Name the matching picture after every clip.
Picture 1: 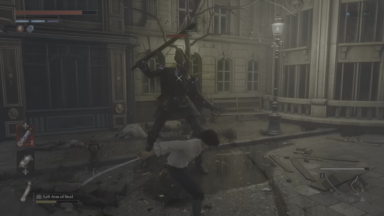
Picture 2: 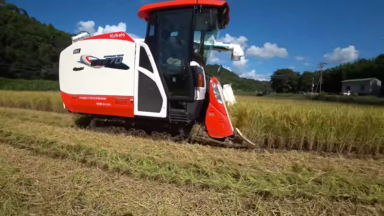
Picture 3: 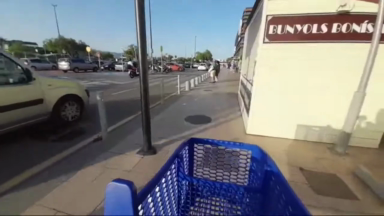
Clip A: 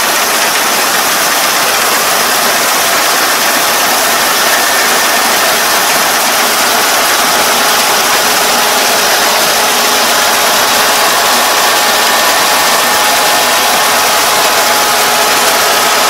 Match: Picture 2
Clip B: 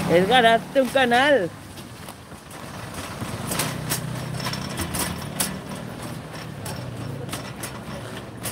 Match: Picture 3